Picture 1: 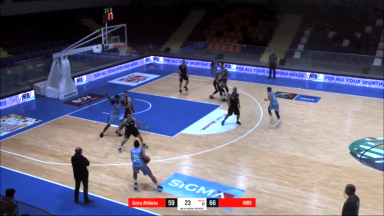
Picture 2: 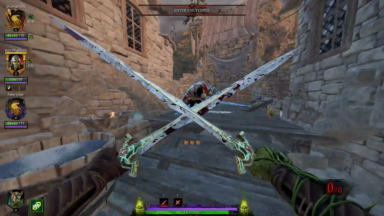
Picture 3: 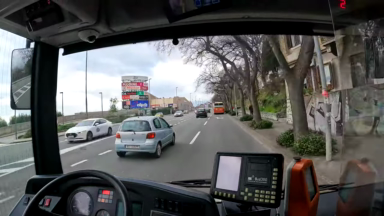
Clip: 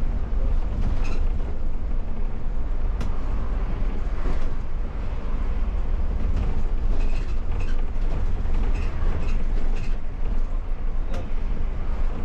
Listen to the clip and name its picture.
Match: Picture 3